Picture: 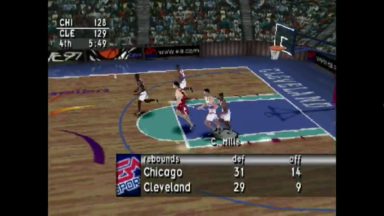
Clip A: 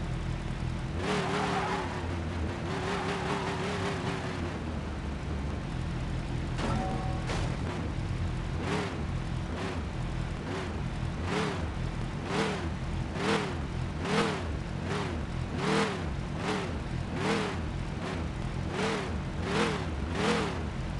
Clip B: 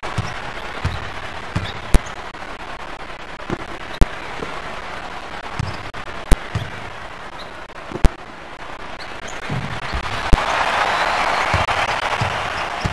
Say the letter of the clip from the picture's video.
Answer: B